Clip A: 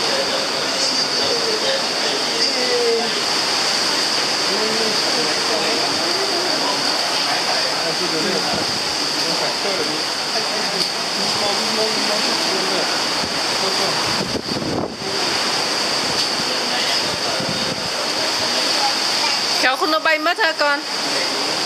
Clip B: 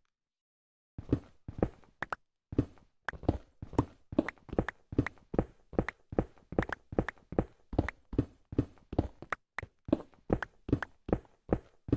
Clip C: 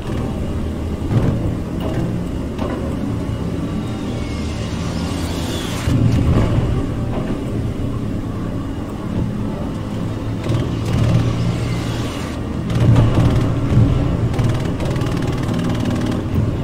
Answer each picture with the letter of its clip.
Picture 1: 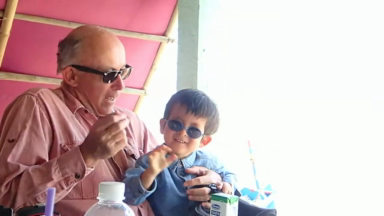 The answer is A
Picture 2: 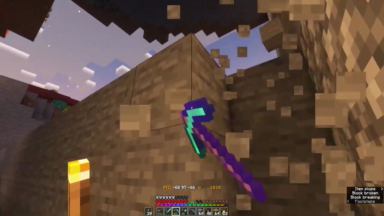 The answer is B